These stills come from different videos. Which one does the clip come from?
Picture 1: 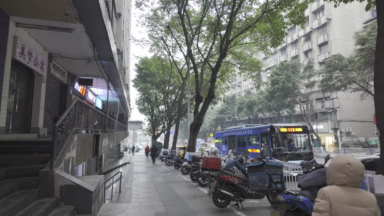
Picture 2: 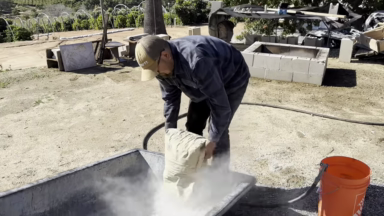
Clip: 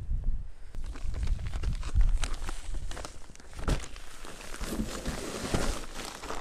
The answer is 2